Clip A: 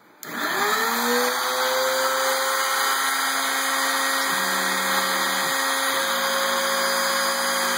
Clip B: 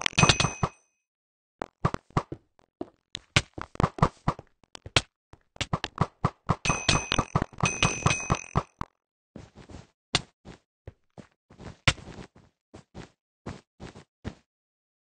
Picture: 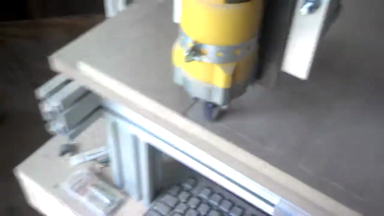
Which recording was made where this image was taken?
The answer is A